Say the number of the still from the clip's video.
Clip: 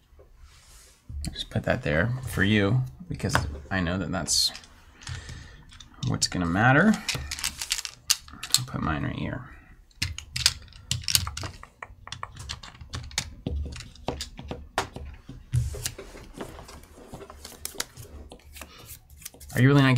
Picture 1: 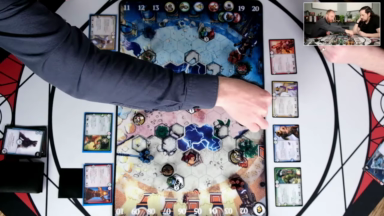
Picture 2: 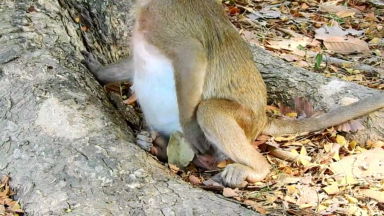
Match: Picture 1